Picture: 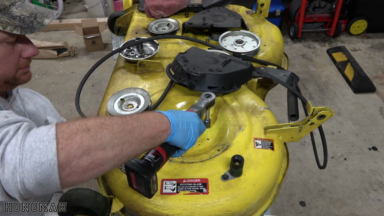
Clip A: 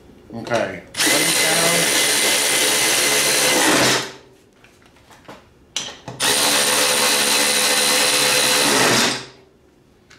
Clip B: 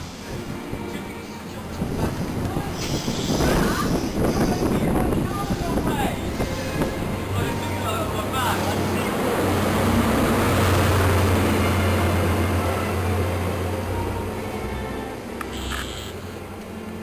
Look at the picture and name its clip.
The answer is A